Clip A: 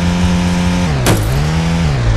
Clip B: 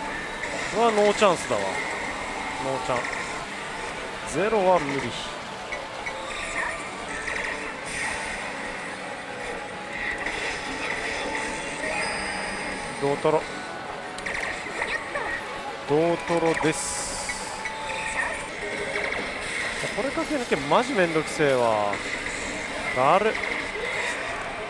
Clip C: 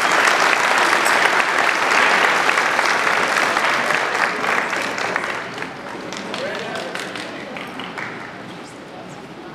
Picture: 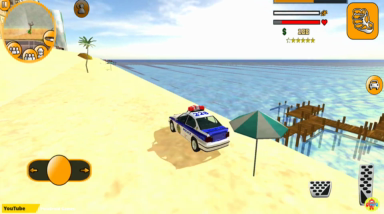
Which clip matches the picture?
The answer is A